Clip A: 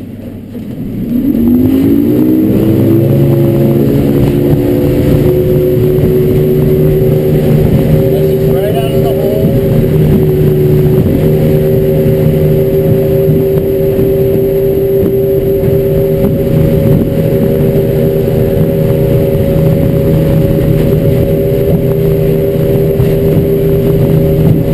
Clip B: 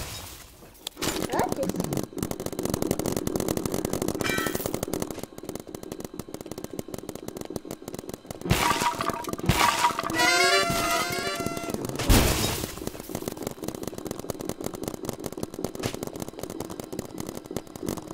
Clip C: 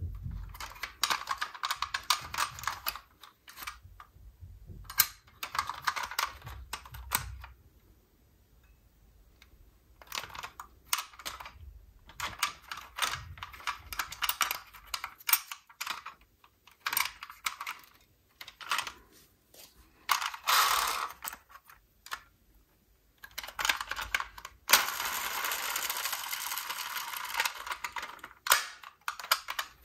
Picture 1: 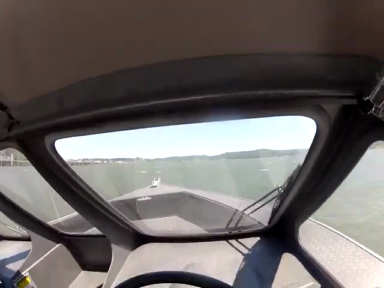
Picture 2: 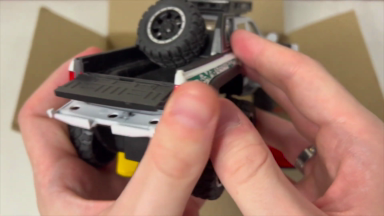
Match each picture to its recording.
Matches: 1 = A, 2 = C